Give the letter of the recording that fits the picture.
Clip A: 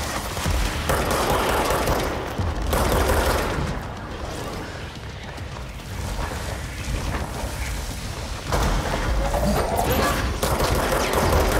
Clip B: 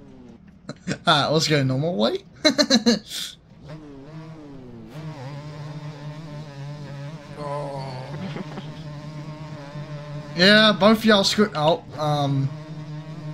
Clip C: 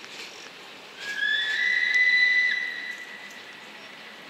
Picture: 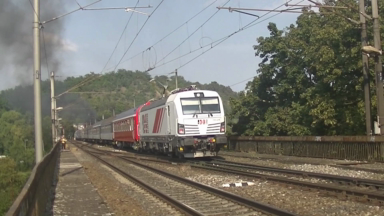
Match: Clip C